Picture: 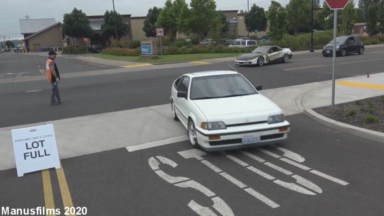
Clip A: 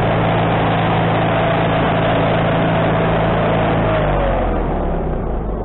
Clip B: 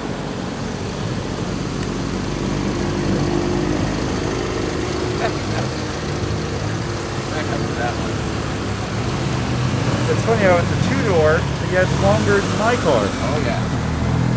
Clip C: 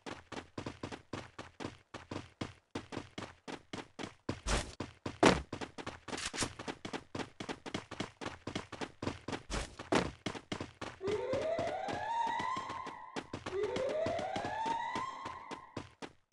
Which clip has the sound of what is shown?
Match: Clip B